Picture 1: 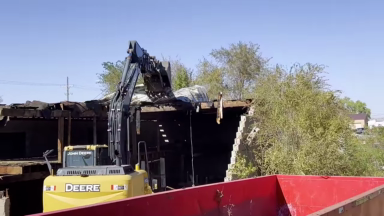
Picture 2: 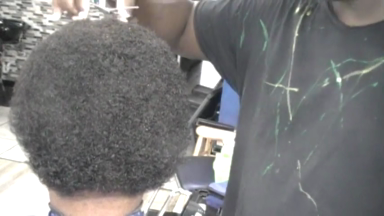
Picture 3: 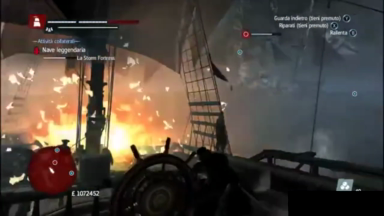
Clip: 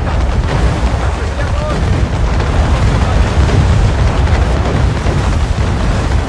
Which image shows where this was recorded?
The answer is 3